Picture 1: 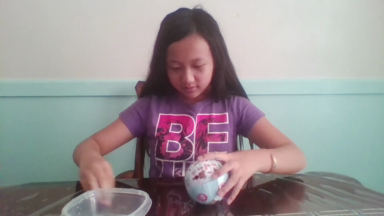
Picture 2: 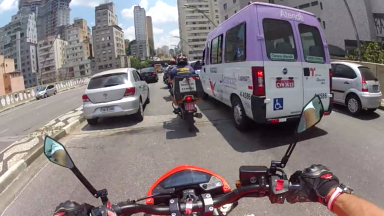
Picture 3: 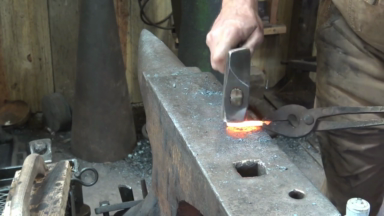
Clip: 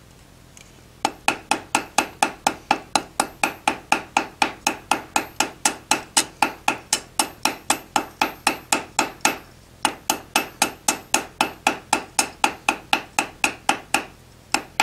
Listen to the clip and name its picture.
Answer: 3